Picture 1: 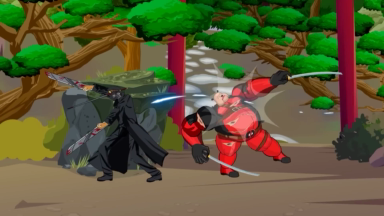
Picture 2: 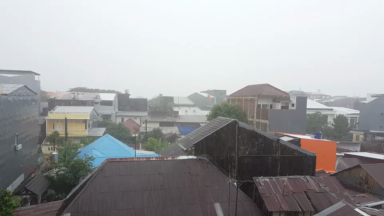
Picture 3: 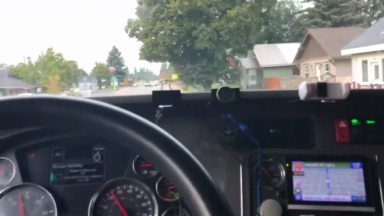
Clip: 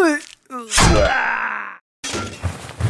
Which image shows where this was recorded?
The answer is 1